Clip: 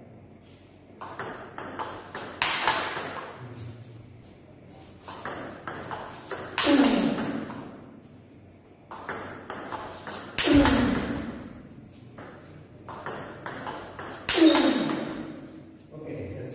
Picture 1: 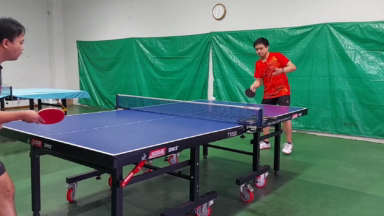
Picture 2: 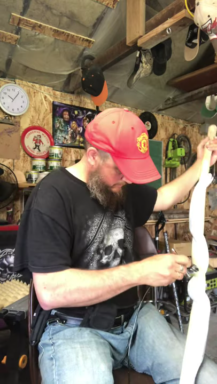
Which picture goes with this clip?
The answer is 1